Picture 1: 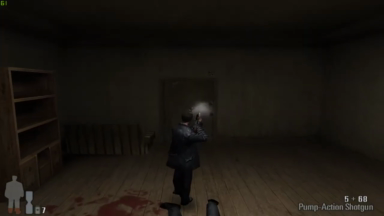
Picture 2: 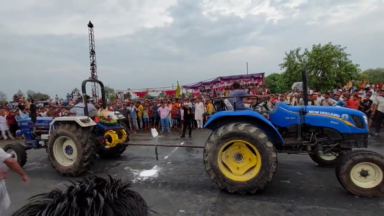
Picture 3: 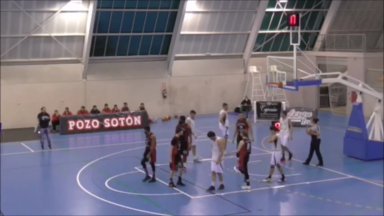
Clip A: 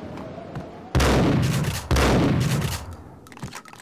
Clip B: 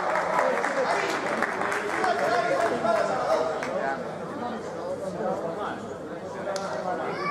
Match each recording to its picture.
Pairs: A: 1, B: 3